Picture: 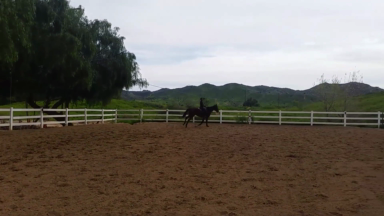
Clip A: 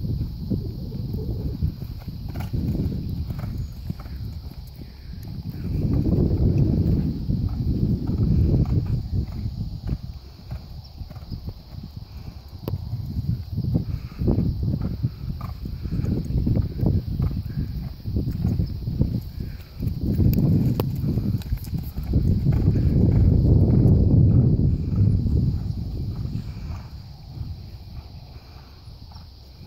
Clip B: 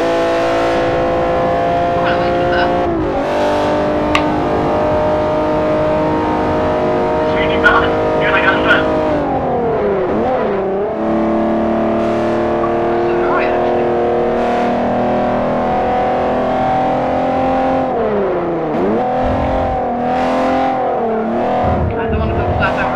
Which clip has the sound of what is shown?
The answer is A